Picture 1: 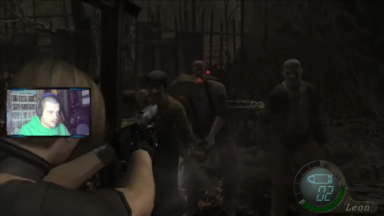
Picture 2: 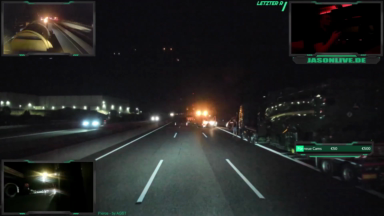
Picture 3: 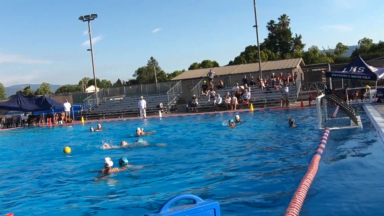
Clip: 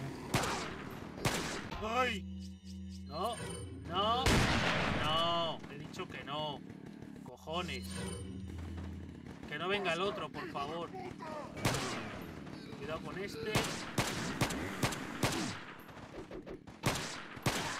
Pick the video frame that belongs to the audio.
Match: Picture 1